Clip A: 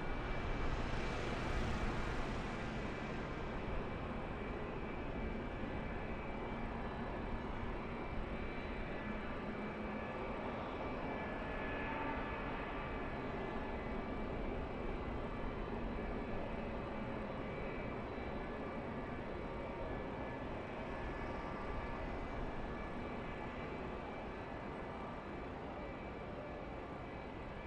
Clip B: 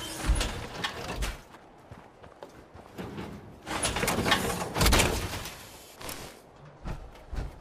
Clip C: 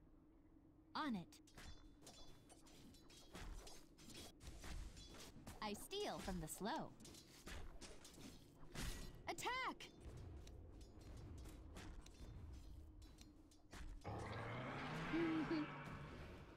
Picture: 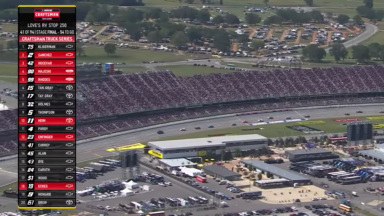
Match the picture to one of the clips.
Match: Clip A